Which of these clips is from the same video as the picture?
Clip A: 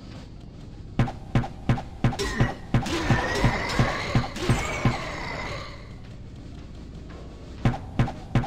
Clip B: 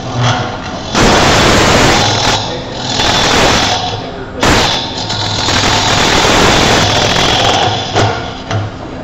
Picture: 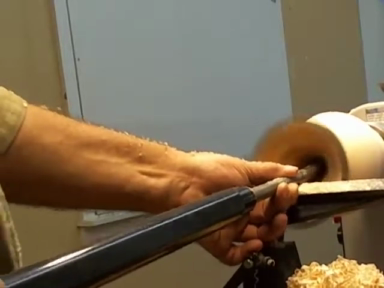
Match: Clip B